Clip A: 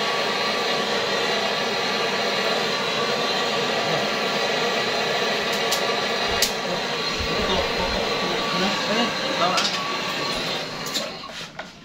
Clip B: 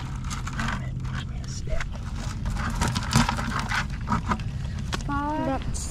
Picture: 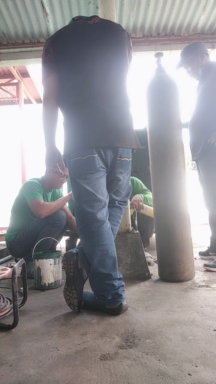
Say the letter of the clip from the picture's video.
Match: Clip A